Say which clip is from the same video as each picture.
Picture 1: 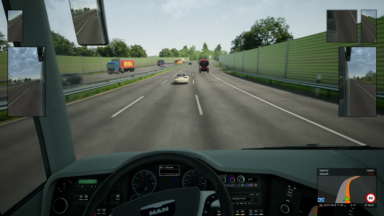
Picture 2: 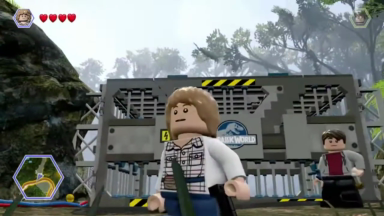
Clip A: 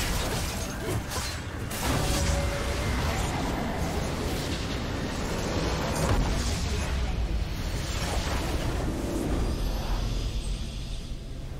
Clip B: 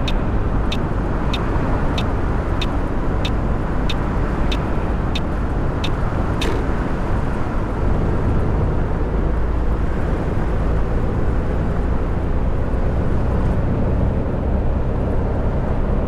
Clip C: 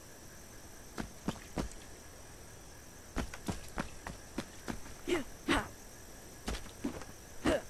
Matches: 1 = B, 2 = C